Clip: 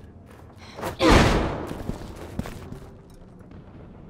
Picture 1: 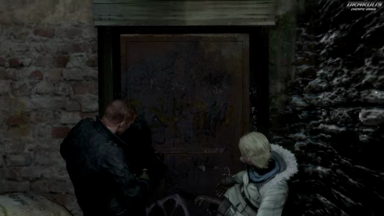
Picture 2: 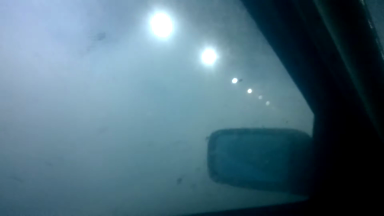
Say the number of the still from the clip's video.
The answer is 1